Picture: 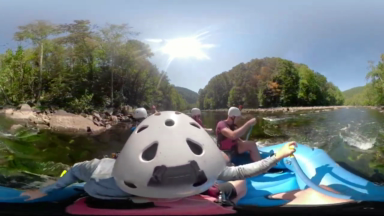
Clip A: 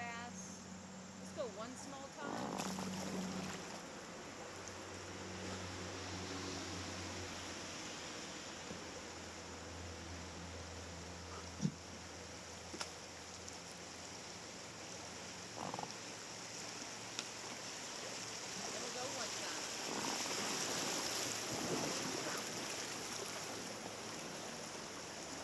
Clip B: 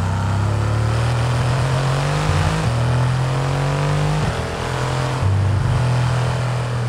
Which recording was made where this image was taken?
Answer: A